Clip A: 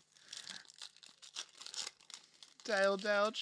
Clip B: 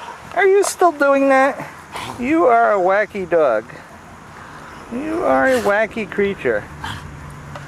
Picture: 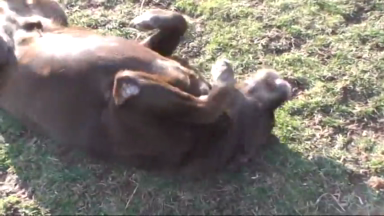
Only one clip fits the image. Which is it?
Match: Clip B